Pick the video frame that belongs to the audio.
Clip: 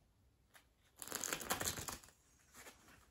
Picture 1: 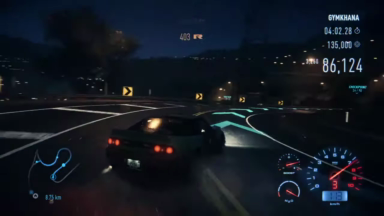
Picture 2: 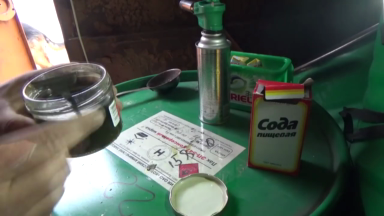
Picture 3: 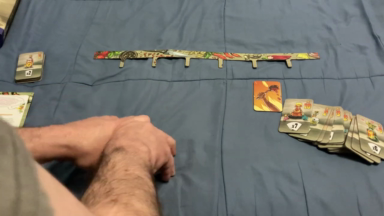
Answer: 3